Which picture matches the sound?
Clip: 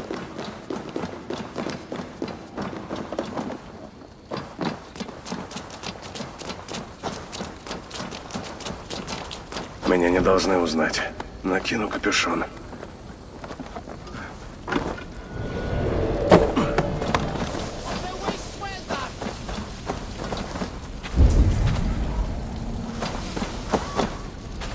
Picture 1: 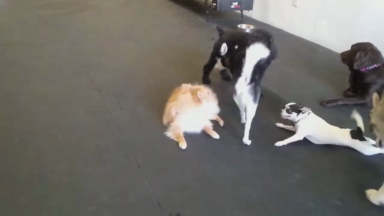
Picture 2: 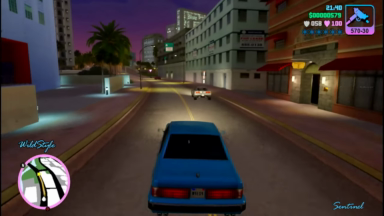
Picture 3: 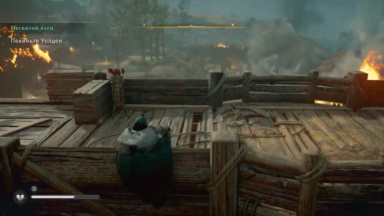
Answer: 3